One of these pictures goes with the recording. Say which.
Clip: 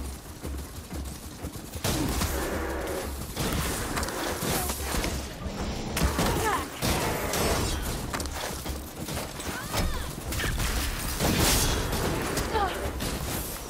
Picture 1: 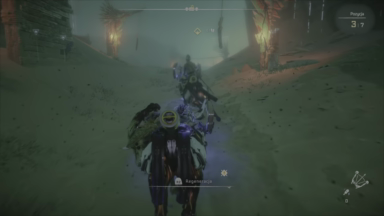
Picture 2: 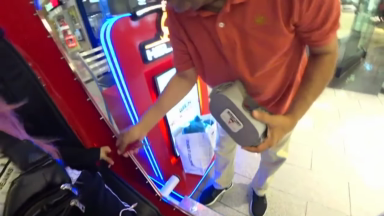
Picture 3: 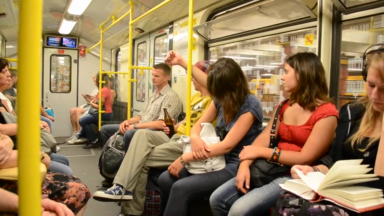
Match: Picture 1